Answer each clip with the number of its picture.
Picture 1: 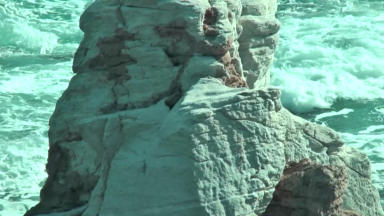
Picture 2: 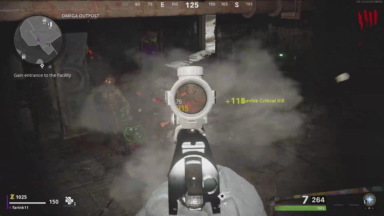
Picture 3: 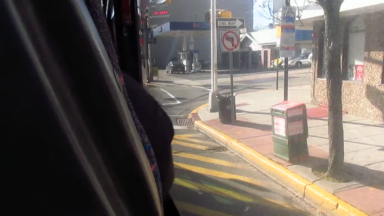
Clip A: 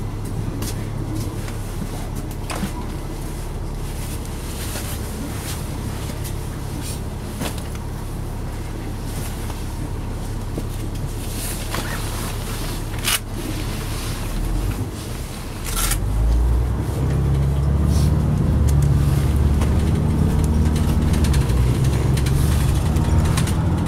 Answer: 3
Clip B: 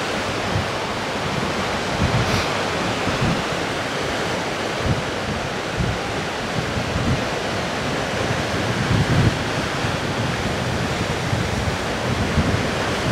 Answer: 1